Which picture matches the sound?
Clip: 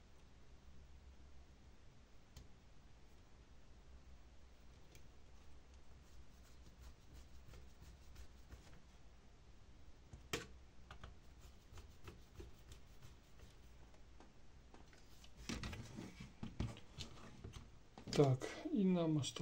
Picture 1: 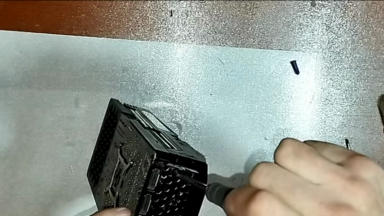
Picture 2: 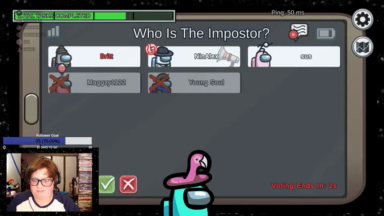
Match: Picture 1